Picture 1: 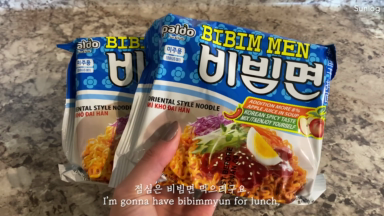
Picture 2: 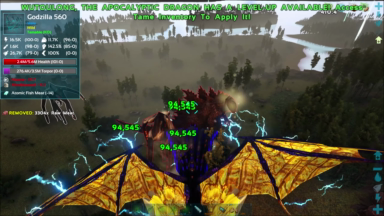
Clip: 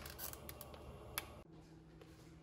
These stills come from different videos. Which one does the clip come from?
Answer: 1